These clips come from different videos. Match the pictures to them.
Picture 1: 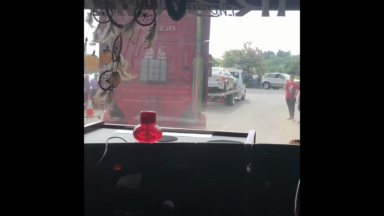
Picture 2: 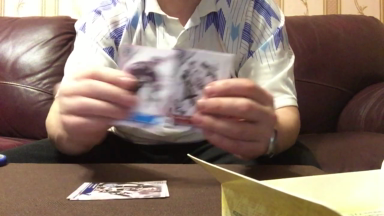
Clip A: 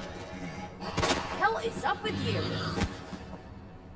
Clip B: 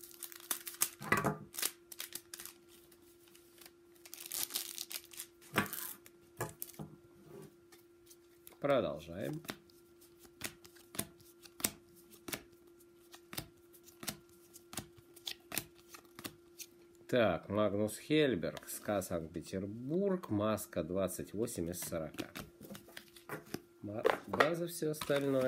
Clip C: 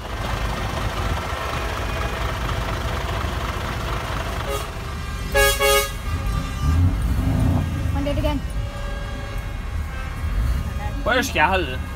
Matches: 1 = C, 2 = B